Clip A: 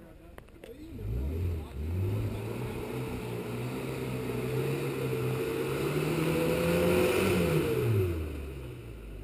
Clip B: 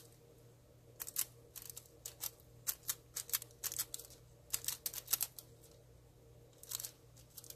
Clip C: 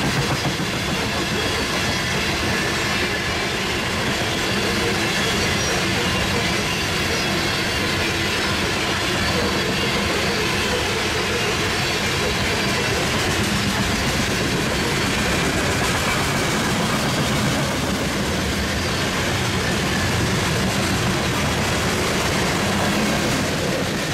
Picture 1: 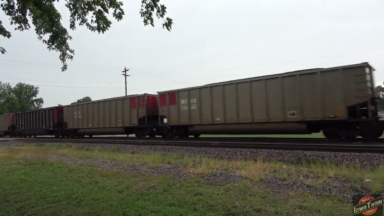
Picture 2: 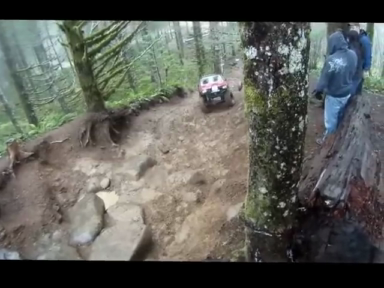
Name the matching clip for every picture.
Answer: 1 C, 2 A